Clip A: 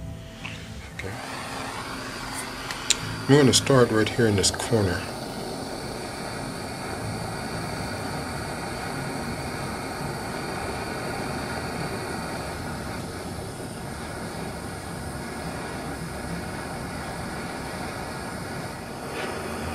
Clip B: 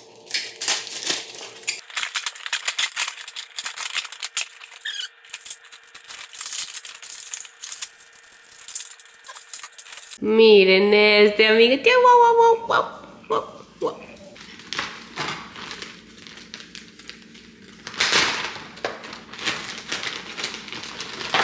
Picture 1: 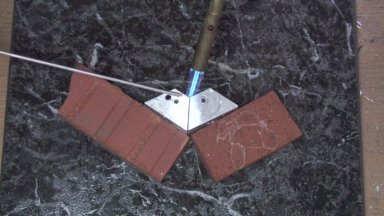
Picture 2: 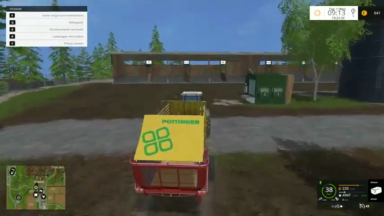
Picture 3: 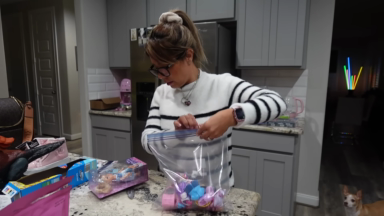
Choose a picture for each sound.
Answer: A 1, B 3